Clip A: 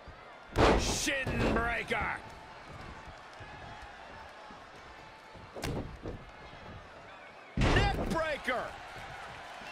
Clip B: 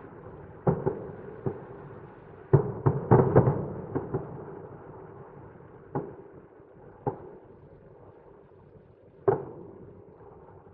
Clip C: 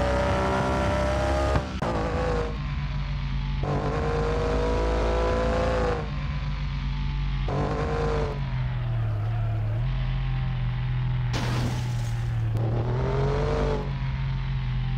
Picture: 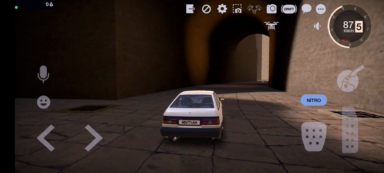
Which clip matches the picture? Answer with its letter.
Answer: C